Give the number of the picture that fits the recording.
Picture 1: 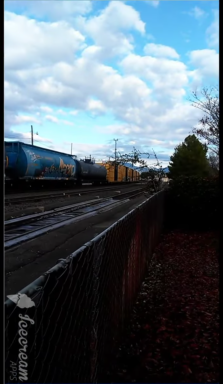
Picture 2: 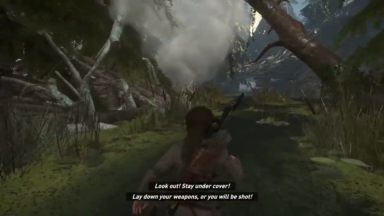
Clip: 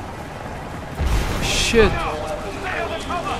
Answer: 2